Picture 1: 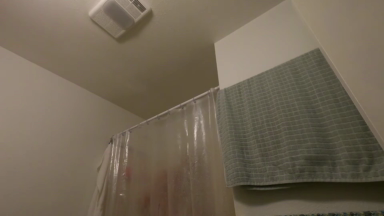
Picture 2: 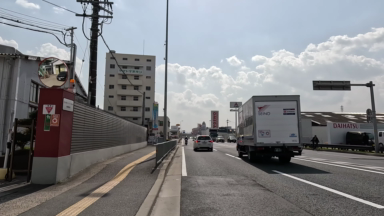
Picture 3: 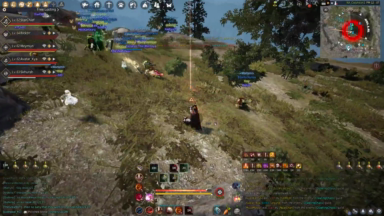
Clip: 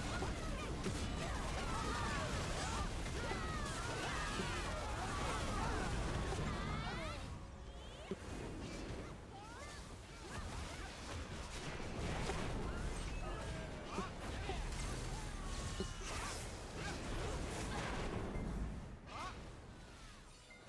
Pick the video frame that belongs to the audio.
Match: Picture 3